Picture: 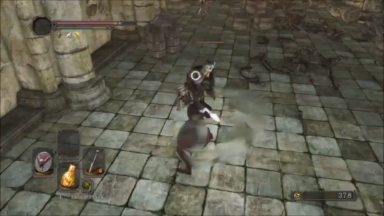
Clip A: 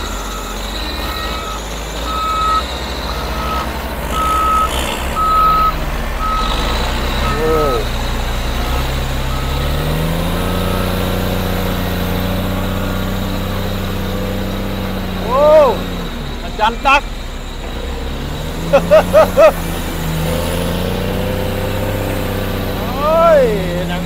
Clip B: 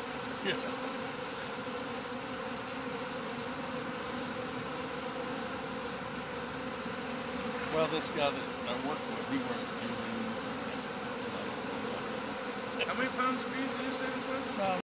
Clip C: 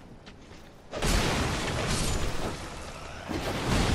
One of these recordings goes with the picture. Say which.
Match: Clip C